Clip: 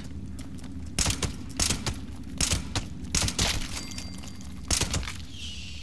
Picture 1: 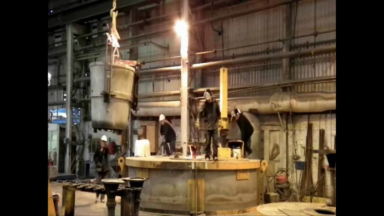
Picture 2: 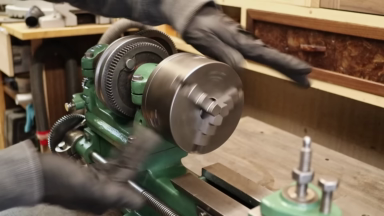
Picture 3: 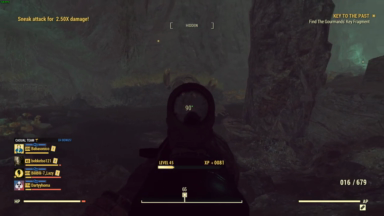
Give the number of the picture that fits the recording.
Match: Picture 3